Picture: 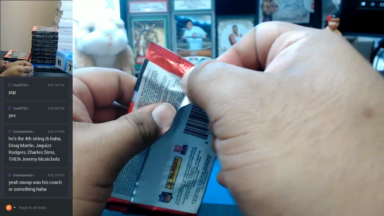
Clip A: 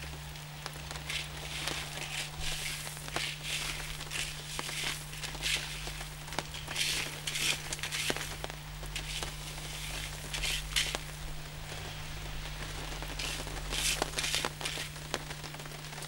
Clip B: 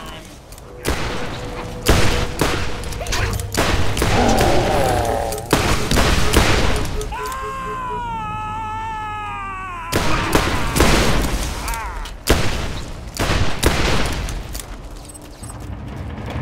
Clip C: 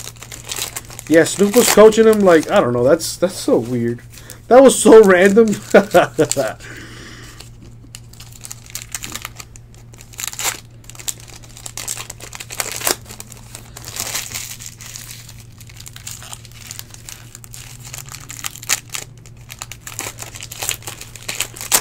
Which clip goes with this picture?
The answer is C